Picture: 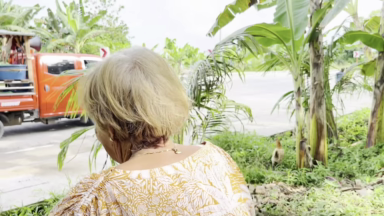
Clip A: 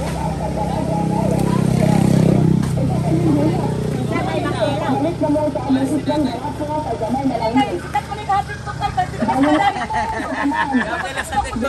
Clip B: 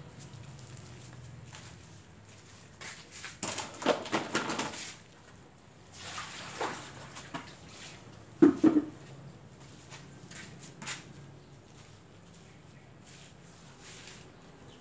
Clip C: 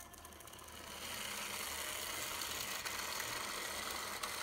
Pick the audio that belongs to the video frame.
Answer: A